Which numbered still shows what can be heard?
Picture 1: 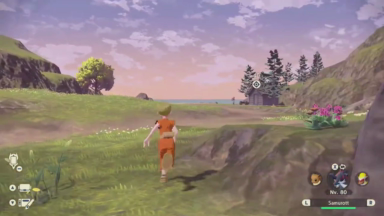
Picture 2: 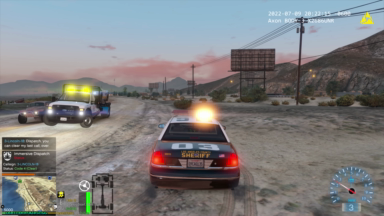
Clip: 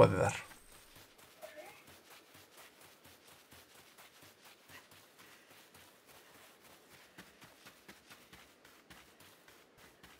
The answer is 1